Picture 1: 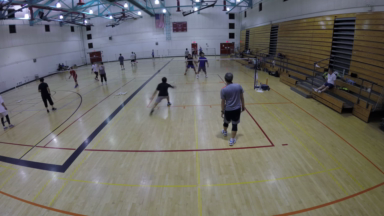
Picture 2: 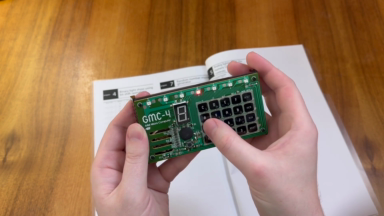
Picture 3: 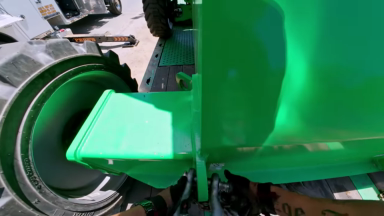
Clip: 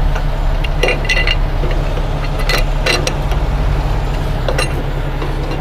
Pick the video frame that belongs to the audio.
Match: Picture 3